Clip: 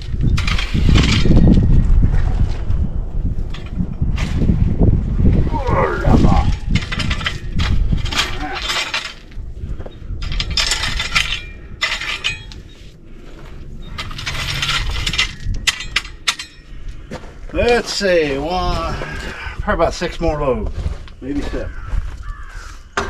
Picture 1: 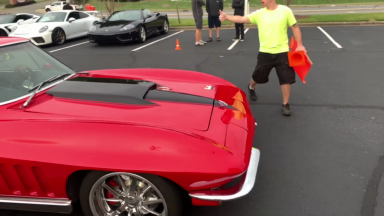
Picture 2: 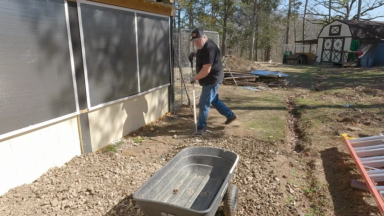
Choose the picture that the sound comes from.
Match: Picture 2